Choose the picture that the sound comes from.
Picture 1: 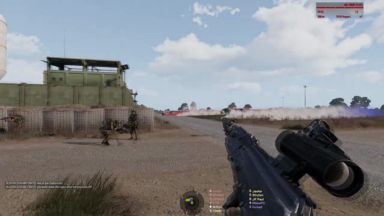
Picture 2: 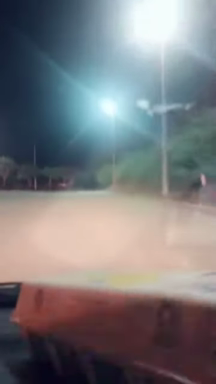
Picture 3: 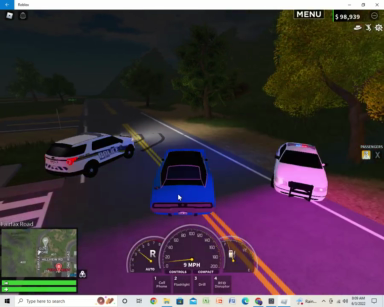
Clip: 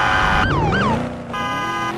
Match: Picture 3